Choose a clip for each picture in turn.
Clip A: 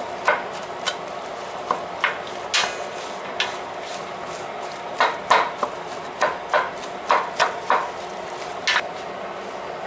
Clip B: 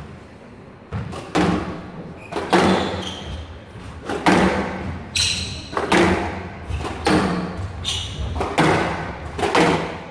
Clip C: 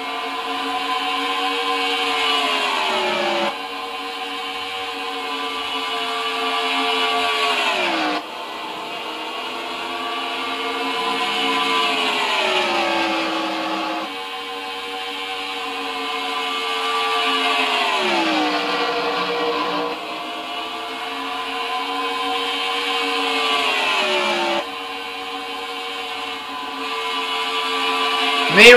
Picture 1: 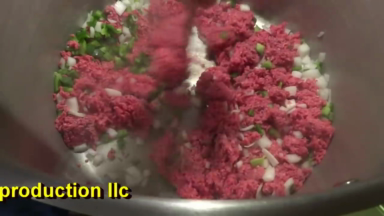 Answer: A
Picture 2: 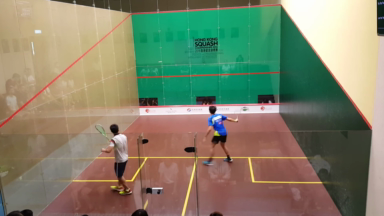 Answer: B